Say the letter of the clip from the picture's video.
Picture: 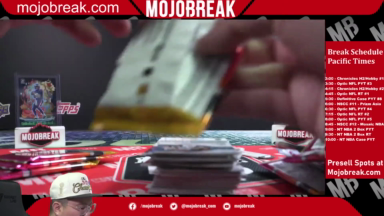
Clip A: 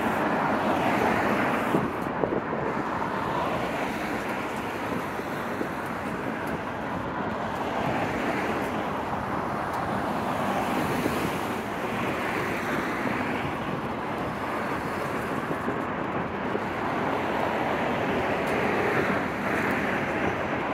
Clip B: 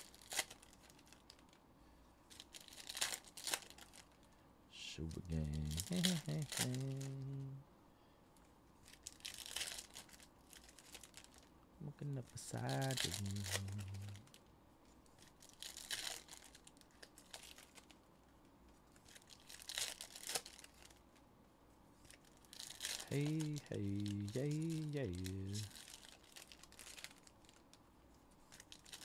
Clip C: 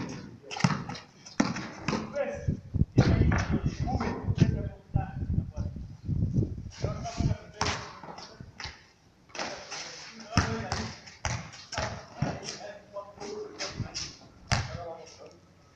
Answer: B